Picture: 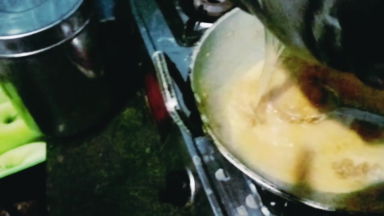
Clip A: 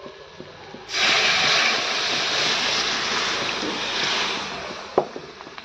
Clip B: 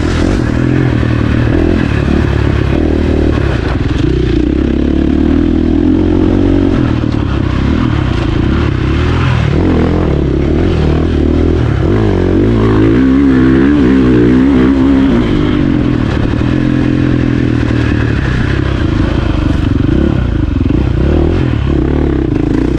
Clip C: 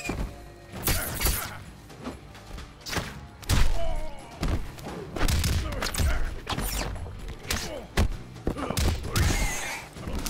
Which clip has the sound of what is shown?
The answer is A